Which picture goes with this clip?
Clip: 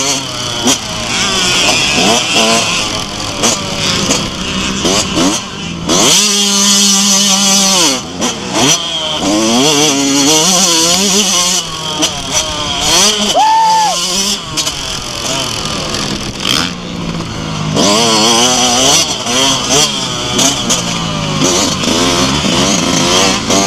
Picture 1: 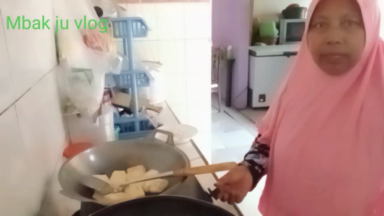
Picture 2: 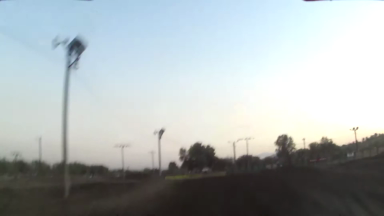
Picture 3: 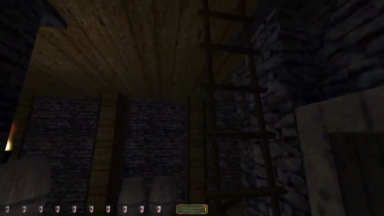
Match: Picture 2